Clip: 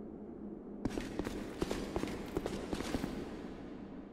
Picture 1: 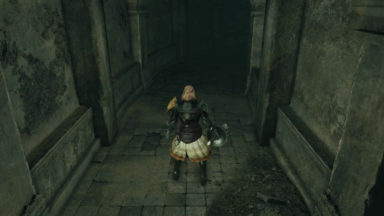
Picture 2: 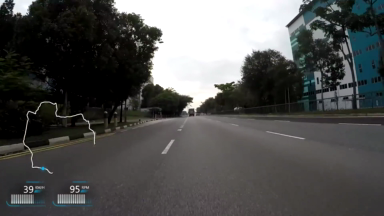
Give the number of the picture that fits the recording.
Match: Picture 1